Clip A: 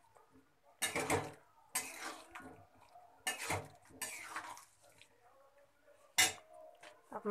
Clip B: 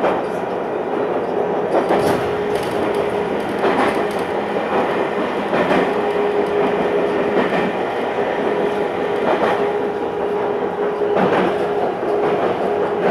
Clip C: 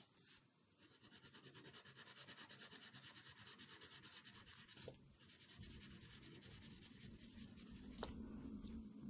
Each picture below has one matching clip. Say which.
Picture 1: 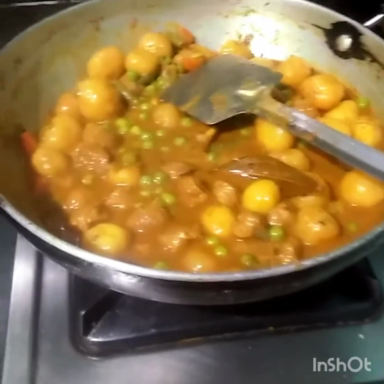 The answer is A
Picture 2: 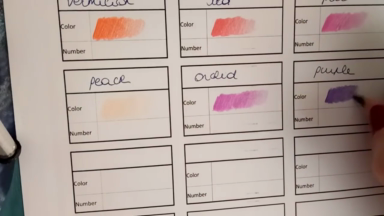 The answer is C